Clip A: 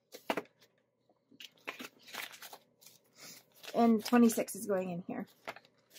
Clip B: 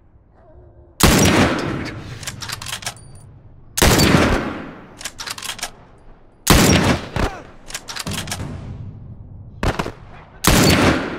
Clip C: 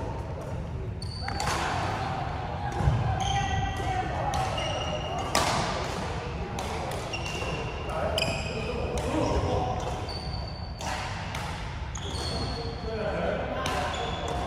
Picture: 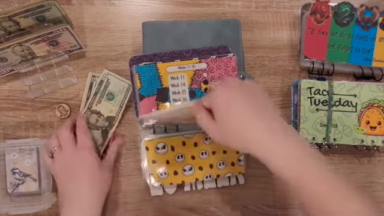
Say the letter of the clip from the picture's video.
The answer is A